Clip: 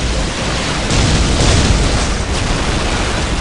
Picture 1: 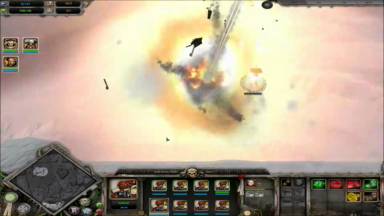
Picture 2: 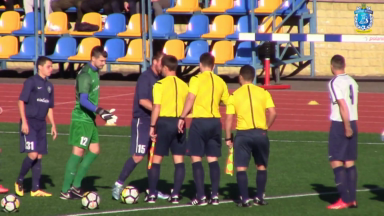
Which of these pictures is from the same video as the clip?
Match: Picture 1